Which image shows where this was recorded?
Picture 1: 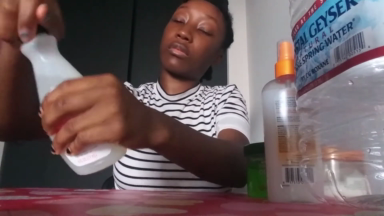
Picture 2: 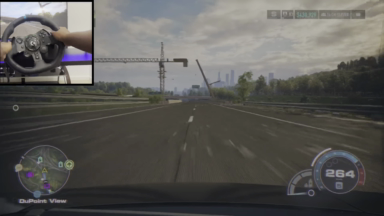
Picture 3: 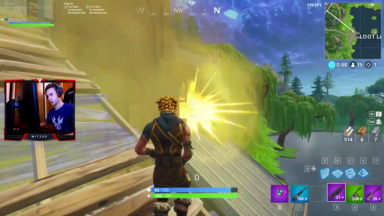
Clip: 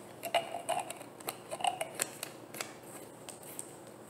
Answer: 1